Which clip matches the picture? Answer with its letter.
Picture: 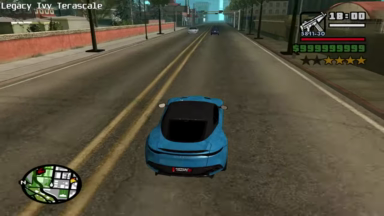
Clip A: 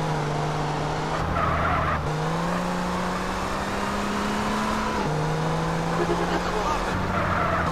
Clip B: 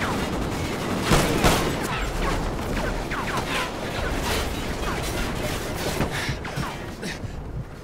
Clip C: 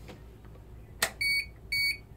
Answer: A